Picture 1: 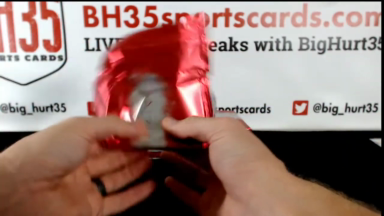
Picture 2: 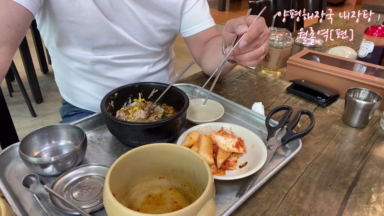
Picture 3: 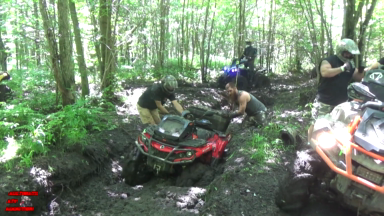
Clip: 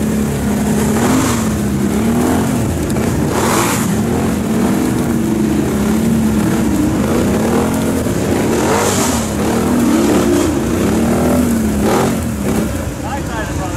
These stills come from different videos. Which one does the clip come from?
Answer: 3